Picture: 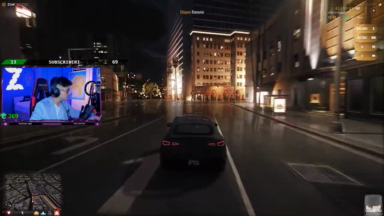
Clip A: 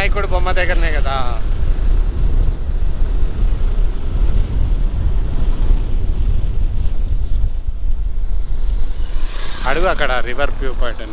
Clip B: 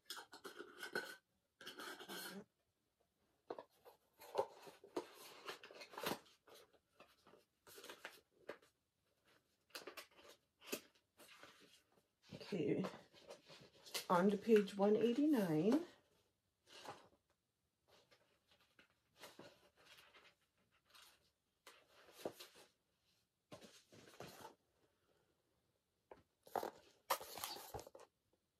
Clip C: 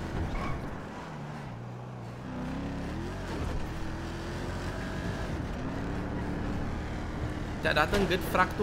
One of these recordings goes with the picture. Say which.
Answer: C